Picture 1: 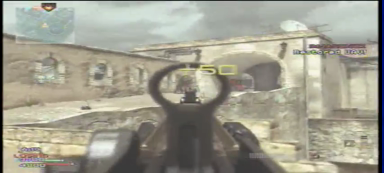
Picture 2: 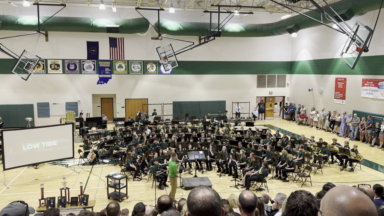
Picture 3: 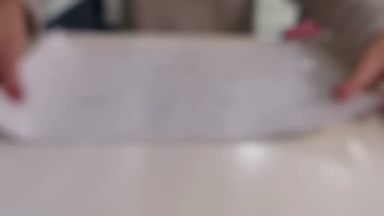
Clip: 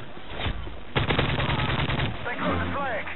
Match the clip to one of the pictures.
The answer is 1